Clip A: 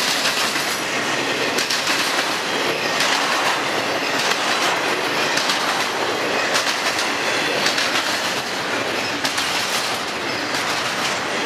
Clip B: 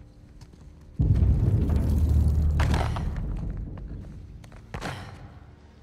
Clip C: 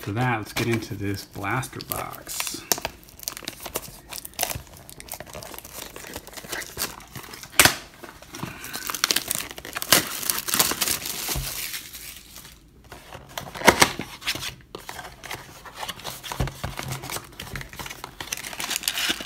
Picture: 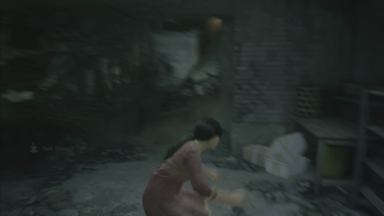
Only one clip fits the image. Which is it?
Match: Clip B